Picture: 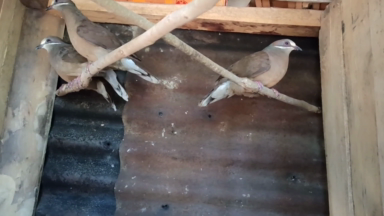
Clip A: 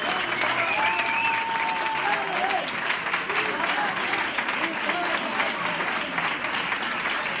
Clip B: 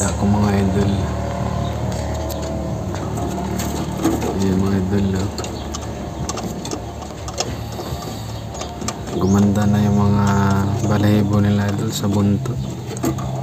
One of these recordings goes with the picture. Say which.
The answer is B